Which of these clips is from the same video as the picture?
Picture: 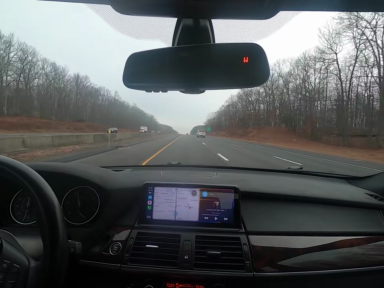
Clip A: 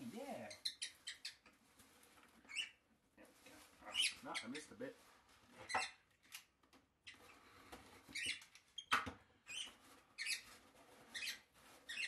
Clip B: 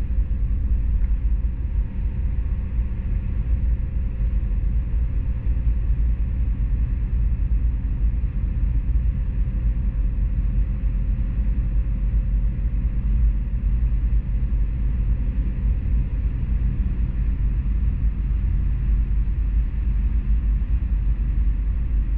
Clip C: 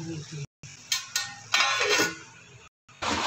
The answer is B